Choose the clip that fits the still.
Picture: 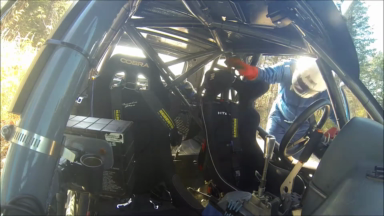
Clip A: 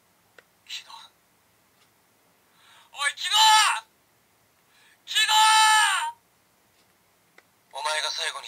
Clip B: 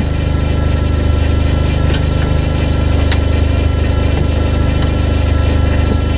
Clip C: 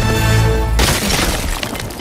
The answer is B